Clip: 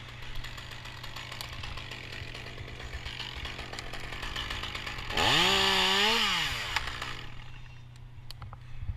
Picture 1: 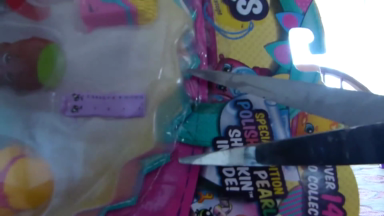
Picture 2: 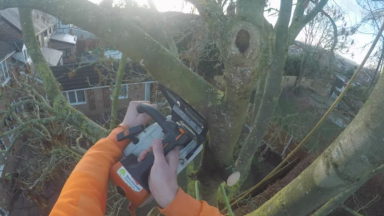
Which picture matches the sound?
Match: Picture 2